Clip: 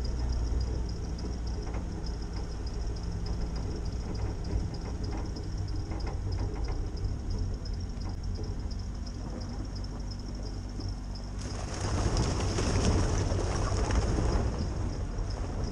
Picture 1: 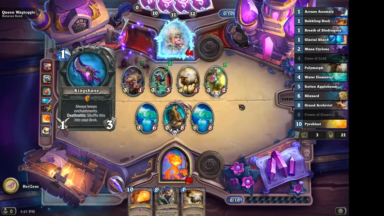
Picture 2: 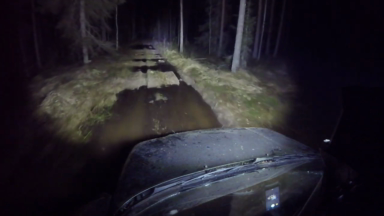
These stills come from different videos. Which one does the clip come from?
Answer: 2